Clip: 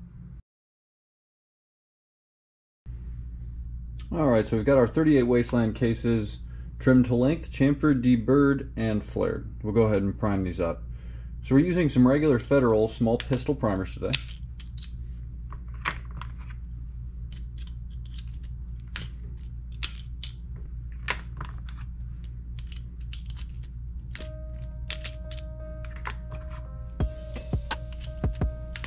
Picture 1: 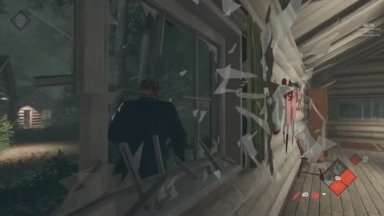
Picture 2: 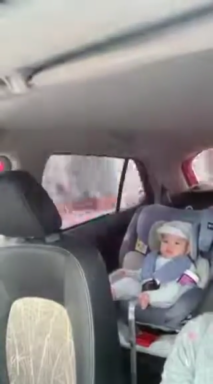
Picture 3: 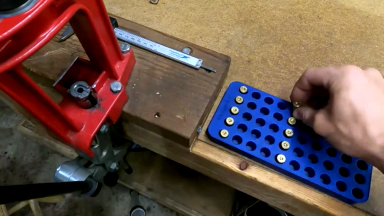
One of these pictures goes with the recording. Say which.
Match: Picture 3